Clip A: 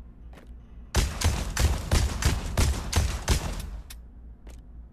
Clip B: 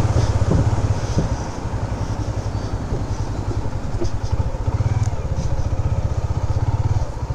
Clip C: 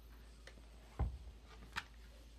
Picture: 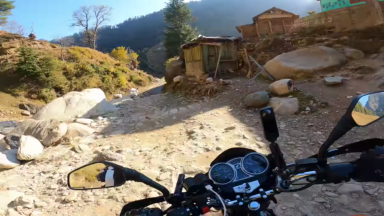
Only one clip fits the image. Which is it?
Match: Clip B